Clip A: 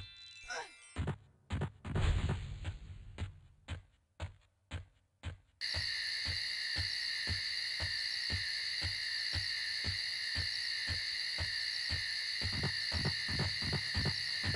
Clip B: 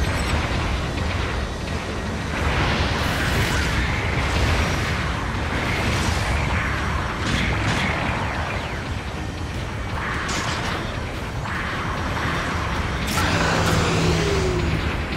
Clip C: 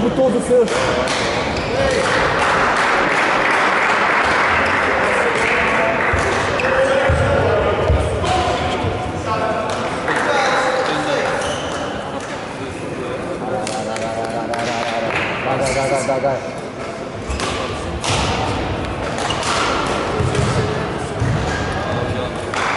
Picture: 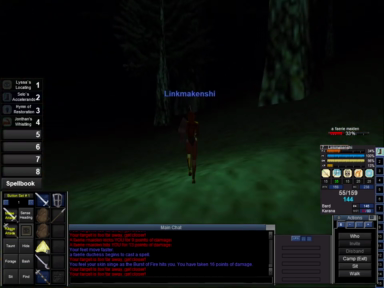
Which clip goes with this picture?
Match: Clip A